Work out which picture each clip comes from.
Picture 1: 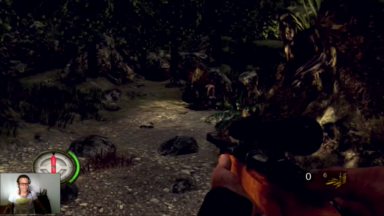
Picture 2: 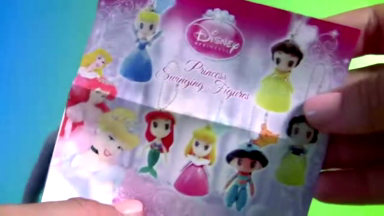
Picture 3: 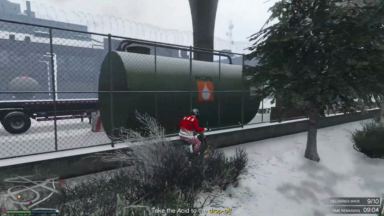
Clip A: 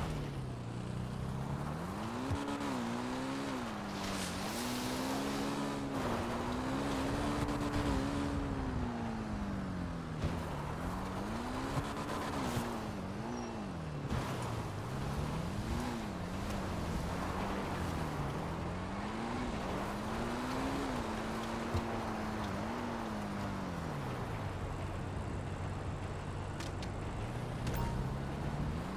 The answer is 3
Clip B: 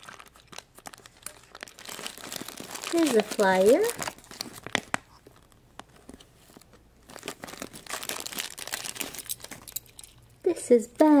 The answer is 2